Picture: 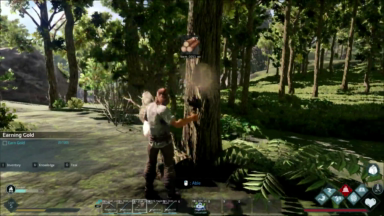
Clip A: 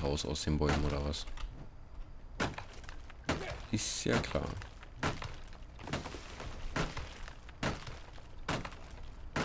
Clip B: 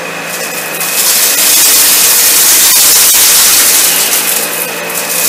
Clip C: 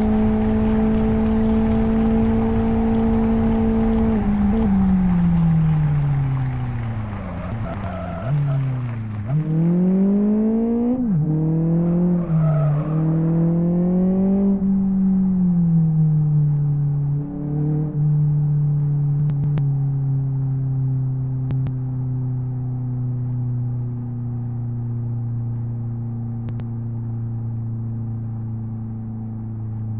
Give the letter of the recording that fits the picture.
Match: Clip A